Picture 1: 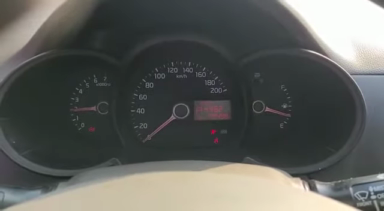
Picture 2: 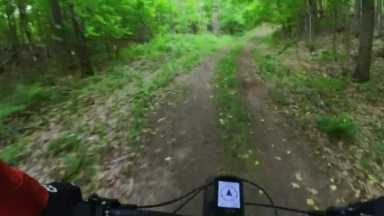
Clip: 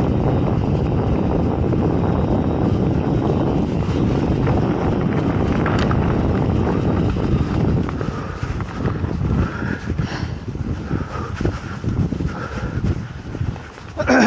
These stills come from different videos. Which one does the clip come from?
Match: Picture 2